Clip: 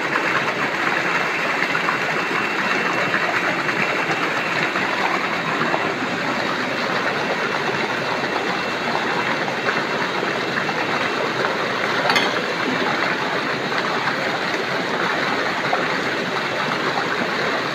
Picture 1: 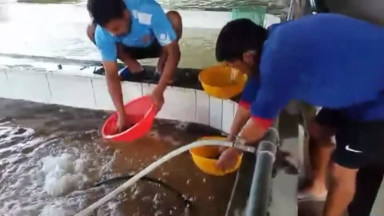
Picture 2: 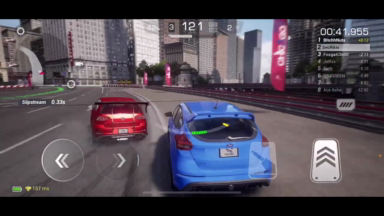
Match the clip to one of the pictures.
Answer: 1